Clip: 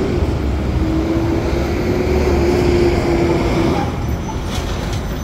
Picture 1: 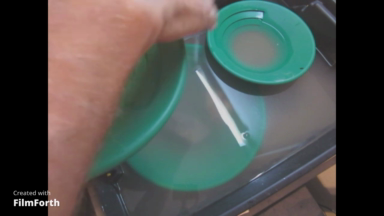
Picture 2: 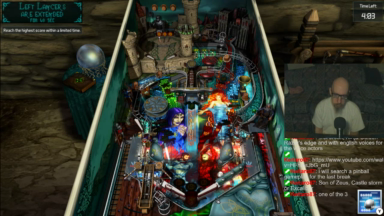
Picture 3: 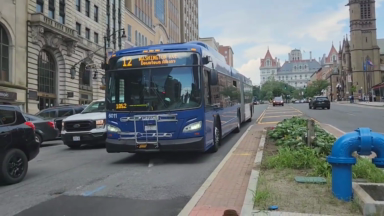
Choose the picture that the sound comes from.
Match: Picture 3